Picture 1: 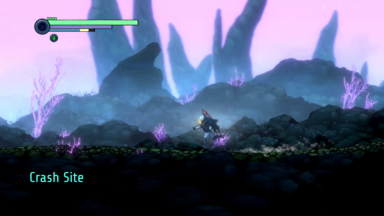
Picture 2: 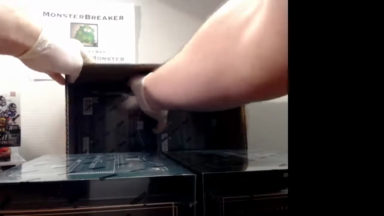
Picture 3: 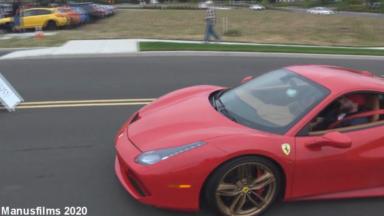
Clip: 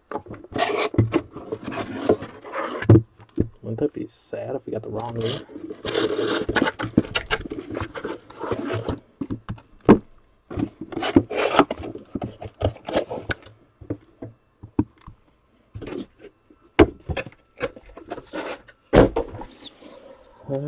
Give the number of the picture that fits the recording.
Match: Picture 2